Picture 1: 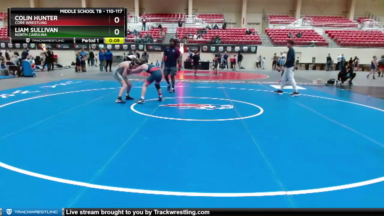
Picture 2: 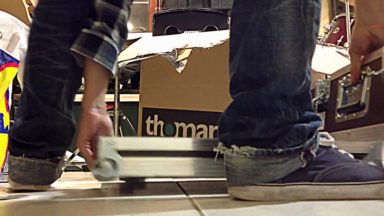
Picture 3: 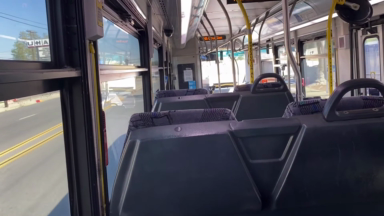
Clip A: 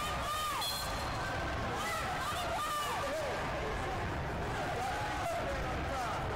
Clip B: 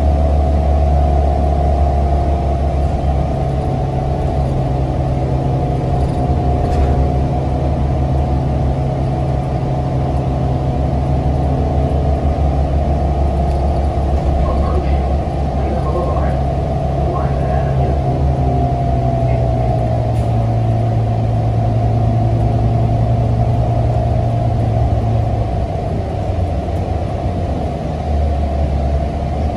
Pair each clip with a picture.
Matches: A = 1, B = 3